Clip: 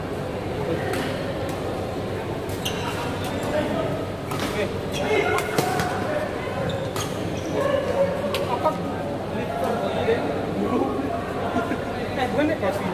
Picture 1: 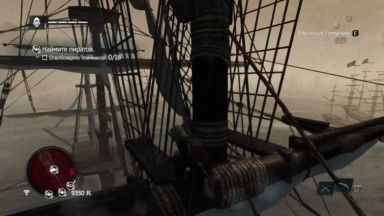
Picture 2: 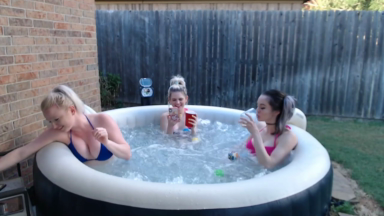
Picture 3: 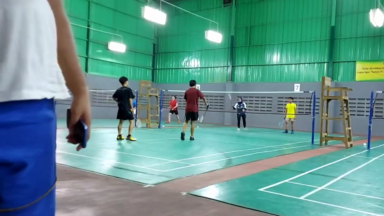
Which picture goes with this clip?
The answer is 3